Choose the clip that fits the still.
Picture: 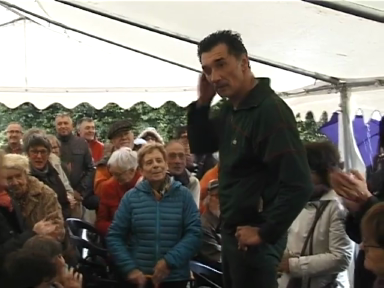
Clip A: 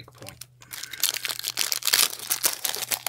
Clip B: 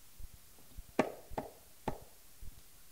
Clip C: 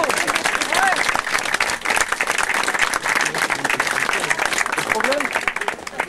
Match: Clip C